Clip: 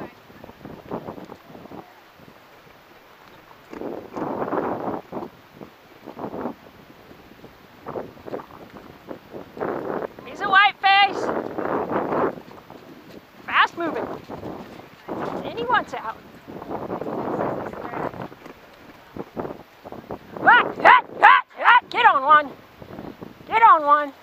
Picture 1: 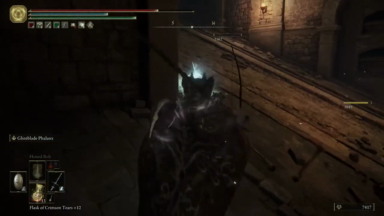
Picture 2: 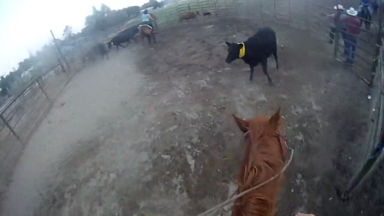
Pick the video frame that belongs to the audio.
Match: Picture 2